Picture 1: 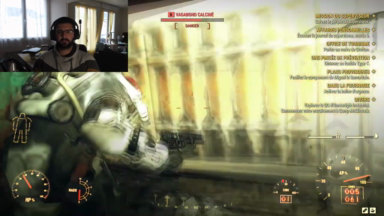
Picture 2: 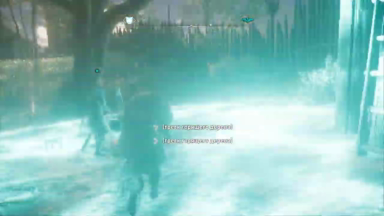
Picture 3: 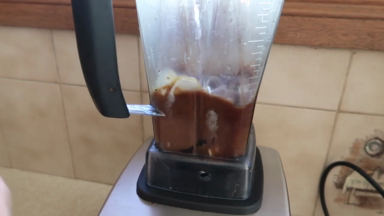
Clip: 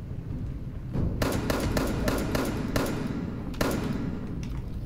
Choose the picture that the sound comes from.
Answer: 1